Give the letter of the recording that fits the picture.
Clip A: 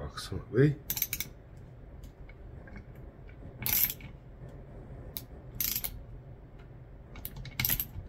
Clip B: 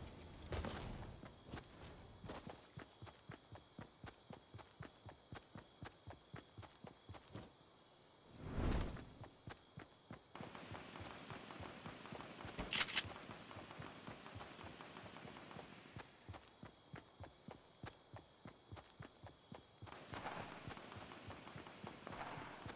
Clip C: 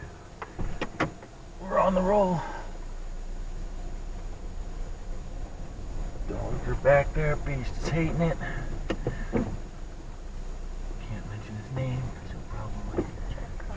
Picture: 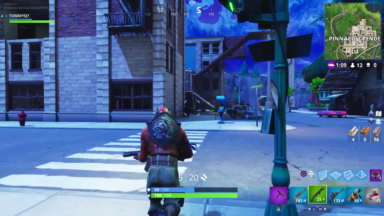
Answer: B